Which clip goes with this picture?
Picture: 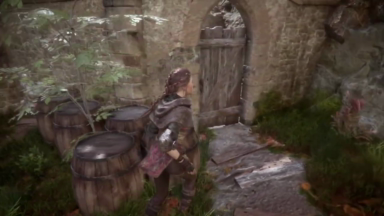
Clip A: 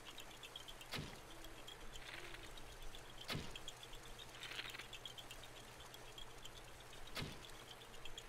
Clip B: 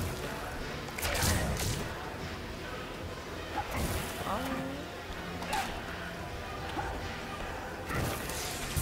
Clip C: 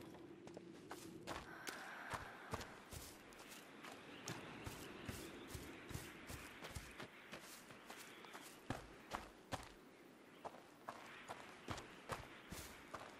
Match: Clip C